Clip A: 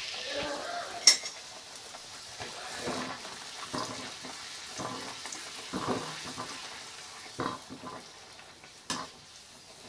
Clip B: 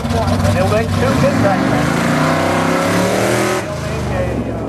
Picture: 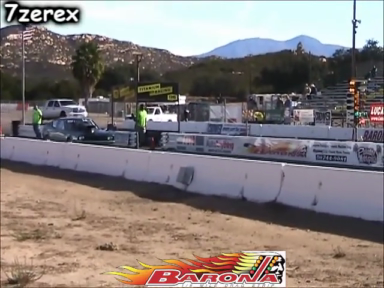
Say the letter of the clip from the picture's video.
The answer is B